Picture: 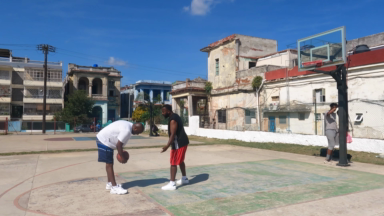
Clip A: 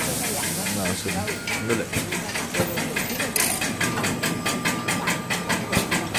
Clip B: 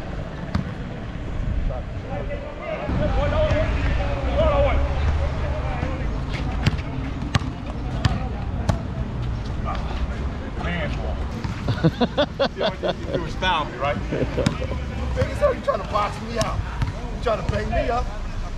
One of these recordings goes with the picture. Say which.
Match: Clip B